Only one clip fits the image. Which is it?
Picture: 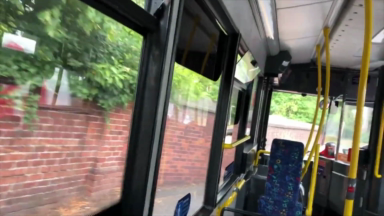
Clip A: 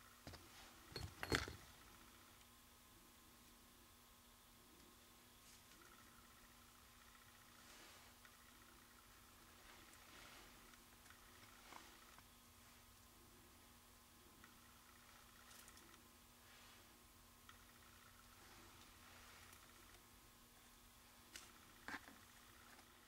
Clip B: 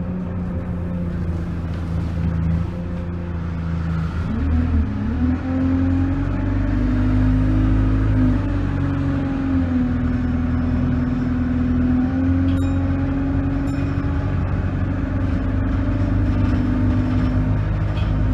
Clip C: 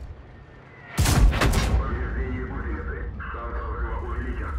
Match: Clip B